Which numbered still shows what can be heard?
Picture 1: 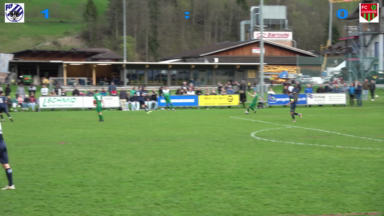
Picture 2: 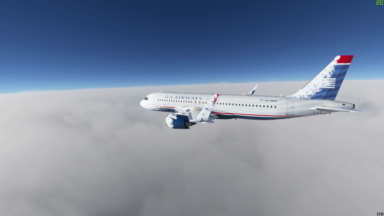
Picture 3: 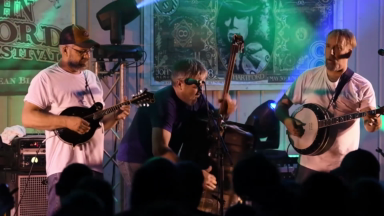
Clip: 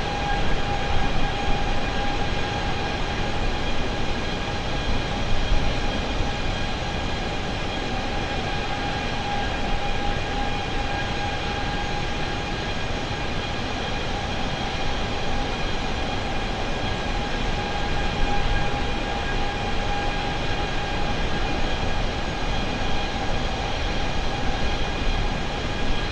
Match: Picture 2